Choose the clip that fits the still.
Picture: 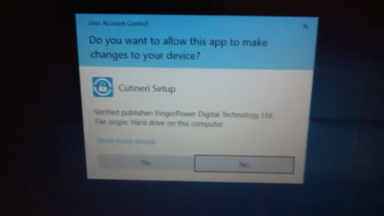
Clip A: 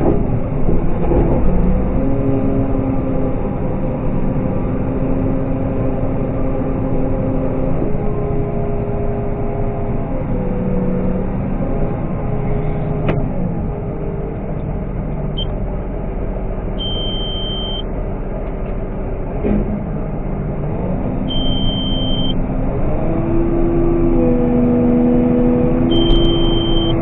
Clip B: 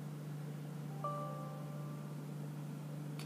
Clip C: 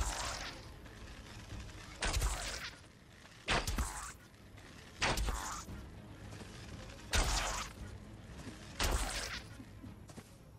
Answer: B